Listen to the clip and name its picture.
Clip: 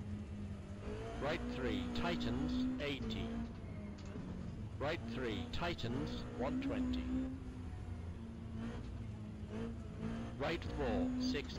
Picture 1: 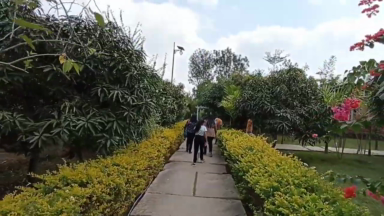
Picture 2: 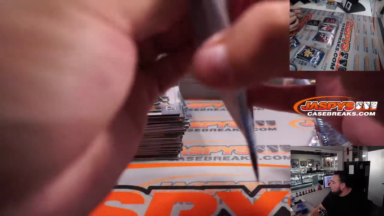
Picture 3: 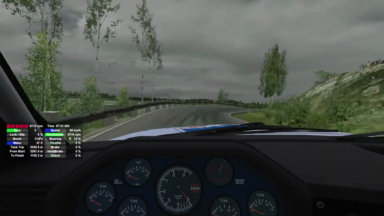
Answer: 3